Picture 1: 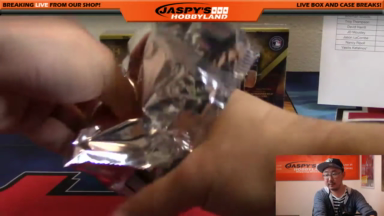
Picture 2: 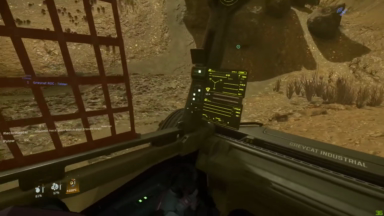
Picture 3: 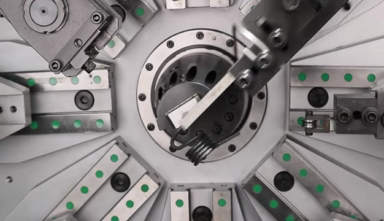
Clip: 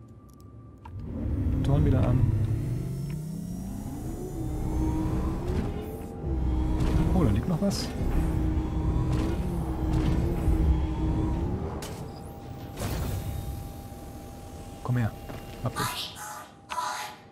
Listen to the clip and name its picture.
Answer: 2